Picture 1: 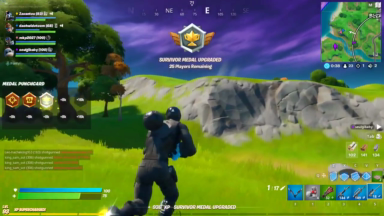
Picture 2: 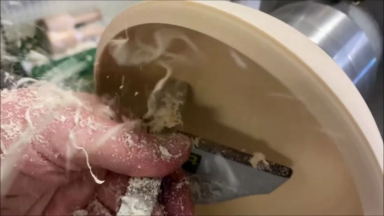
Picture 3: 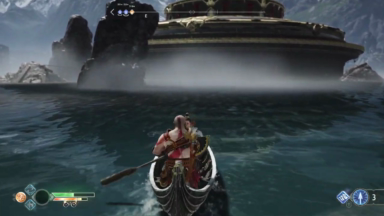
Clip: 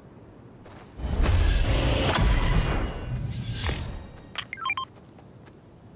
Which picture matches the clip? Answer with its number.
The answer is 1